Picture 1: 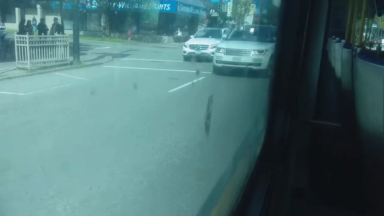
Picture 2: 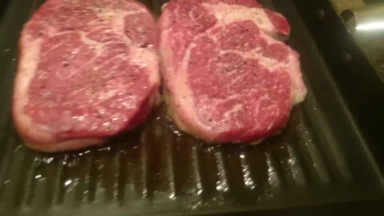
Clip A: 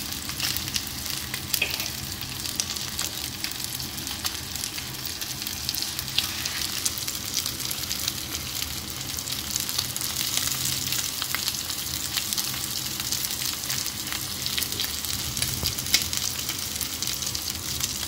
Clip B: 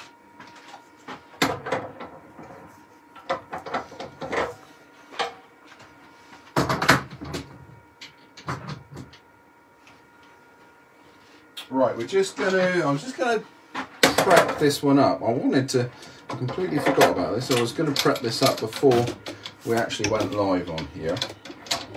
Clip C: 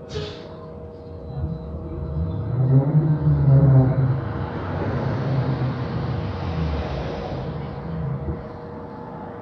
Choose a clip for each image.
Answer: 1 C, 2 A